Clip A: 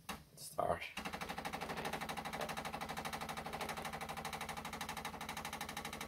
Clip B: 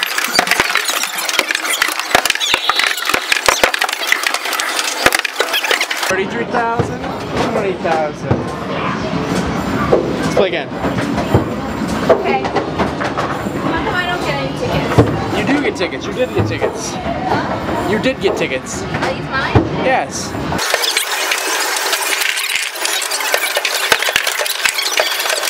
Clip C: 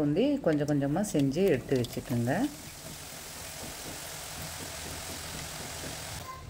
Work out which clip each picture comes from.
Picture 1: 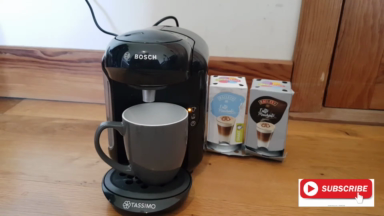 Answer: A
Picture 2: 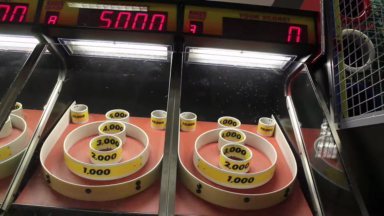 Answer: B